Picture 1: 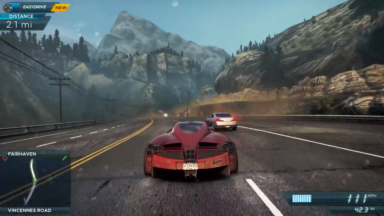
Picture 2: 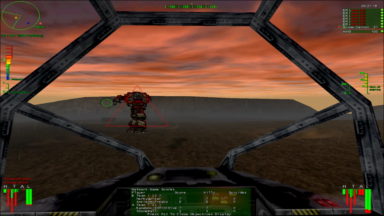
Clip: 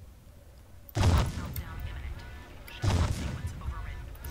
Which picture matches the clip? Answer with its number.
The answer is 2